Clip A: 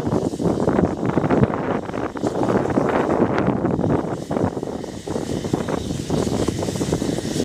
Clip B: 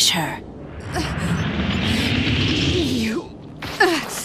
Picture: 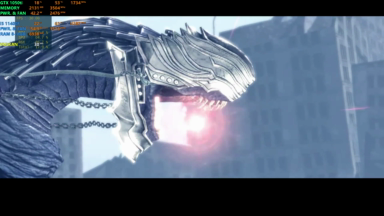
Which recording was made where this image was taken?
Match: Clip B